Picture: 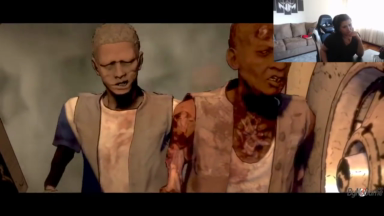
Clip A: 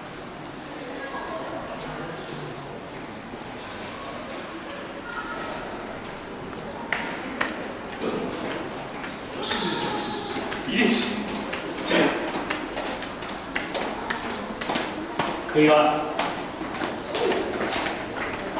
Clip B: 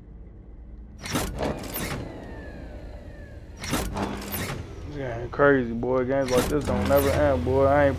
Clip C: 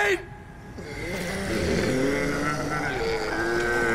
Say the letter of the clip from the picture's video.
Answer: C